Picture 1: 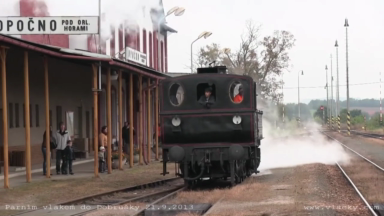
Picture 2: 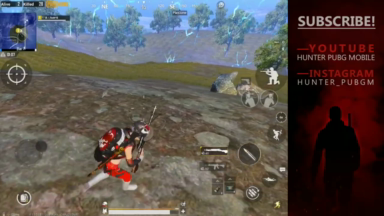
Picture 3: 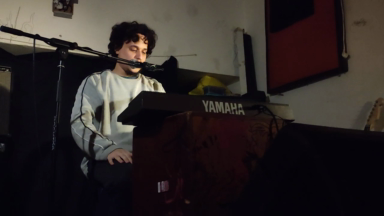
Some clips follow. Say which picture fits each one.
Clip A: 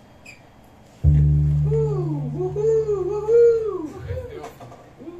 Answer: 3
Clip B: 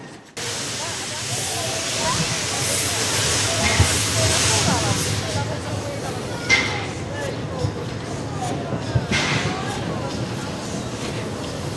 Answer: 1